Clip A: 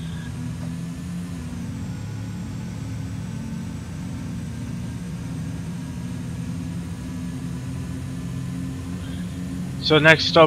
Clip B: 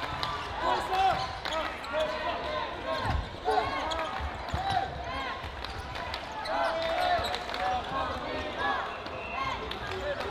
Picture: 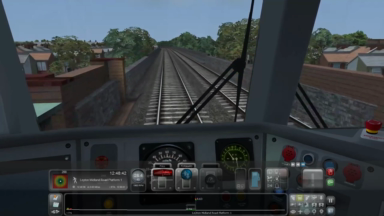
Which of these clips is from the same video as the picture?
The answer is A